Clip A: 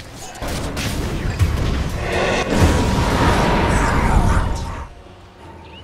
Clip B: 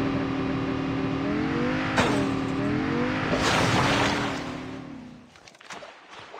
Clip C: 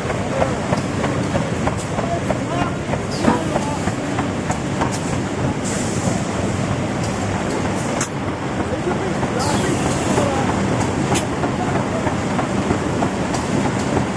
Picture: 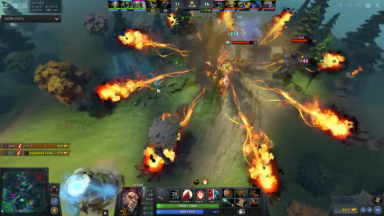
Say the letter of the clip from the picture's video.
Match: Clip A